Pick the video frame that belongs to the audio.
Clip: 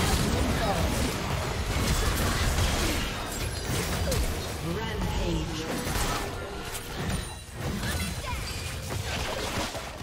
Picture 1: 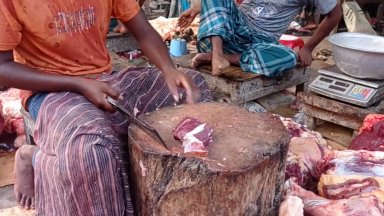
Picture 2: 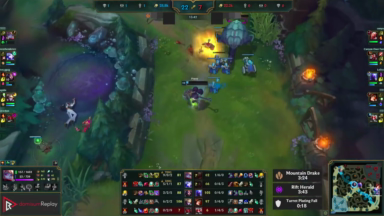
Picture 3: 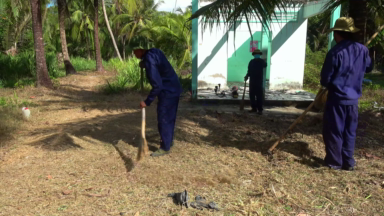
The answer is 2